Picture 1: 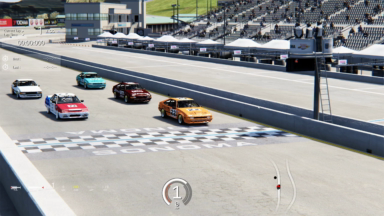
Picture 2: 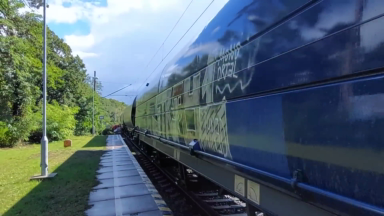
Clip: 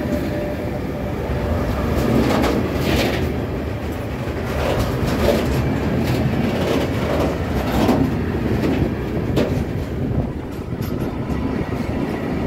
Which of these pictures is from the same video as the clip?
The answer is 2